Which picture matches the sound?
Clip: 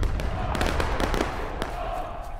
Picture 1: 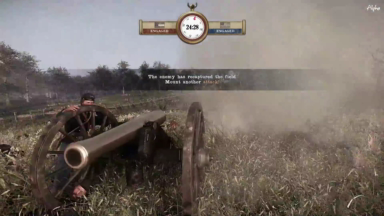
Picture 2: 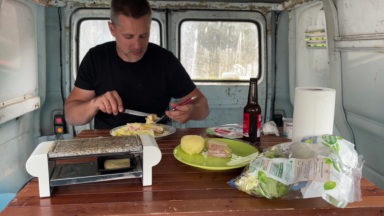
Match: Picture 1